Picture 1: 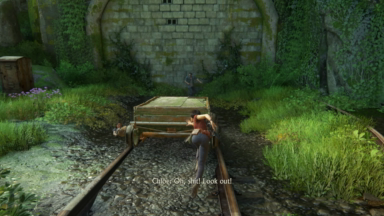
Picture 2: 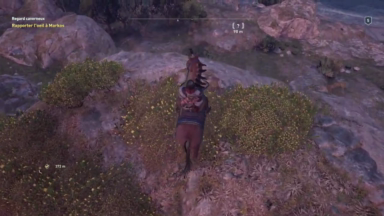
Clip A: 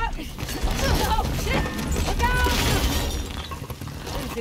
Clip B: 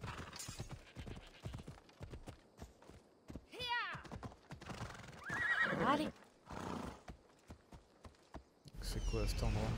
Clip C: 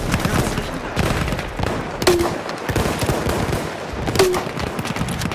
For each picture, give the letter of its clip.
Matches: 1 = A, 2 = B